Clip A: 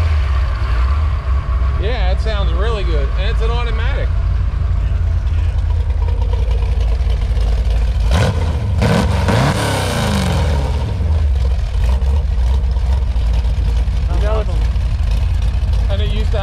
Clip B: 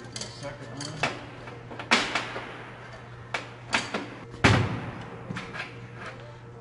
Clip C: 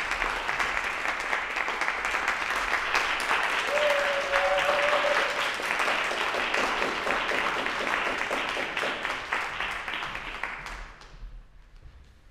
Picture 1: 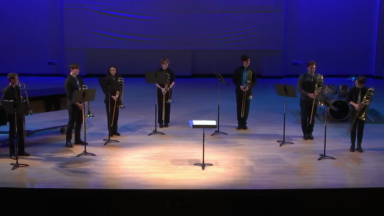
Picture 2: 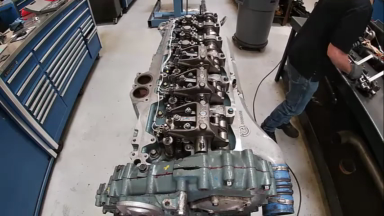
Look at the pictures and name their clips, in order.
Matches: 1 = C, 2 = B